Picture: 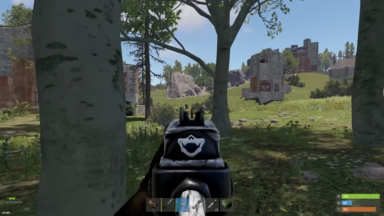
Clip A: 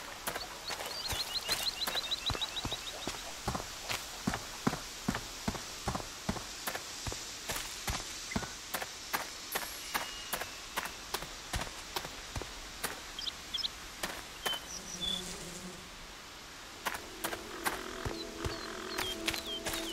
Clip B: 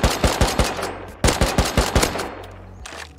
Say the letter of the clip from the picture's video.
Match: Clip B